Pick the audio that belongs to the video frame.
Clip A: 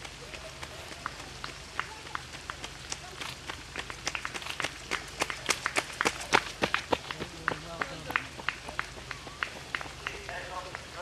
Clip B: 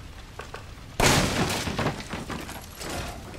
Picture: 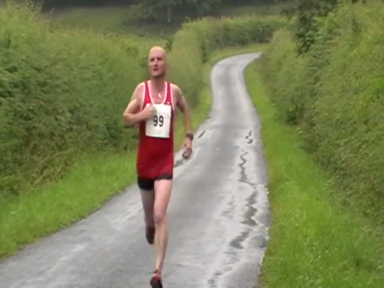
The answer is A